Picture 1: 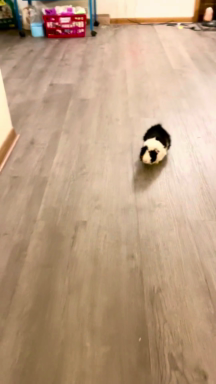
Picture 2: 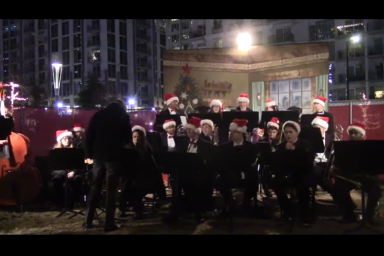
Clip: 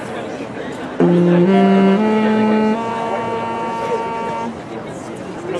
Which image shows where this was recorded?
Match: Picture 2